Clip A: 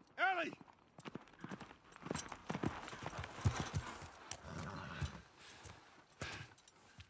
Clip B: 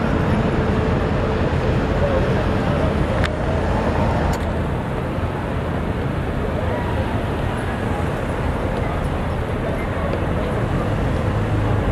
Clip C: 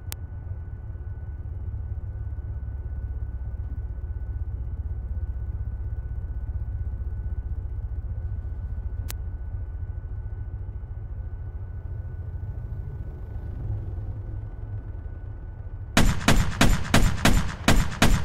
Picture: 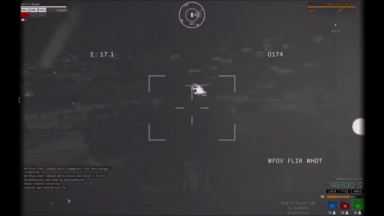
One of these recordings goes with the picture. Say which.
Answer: C